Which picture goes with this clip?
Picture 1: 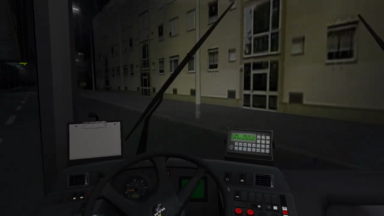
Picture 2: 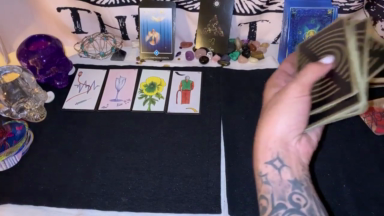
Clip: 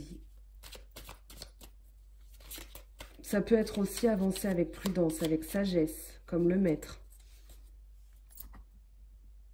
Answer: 2